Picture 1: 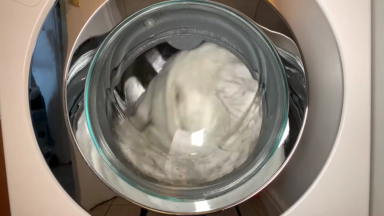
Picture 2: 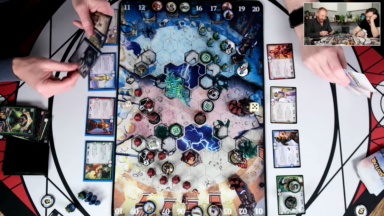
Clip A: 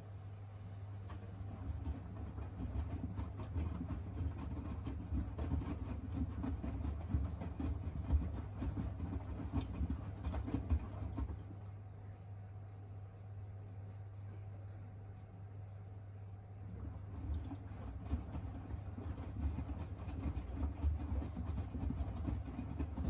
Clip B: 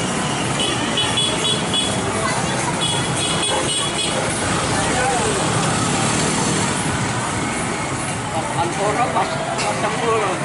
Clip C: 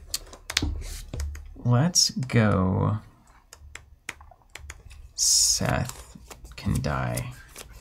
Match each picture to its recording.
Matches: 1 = A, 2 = C